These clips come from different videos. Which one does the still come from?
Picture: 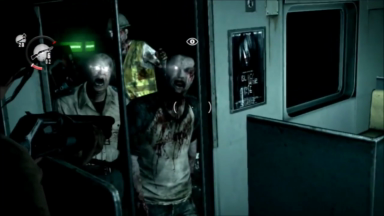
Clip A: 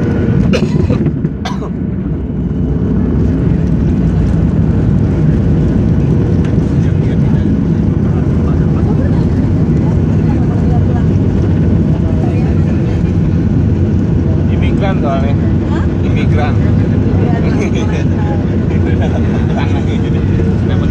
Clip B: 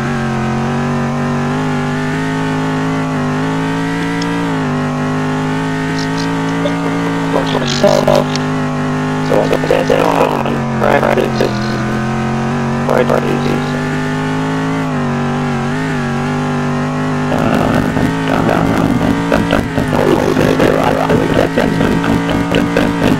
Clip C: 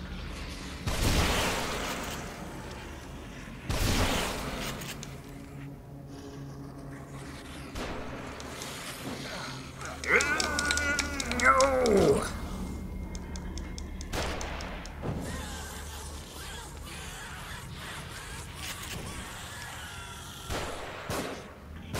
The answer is C